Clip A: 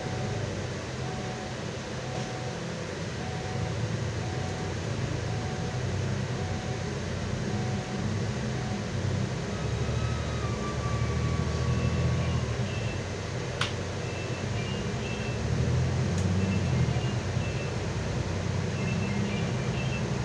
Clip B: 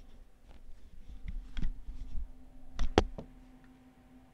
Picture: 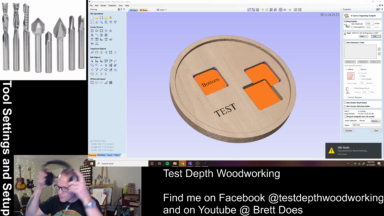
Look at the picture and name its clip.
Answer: B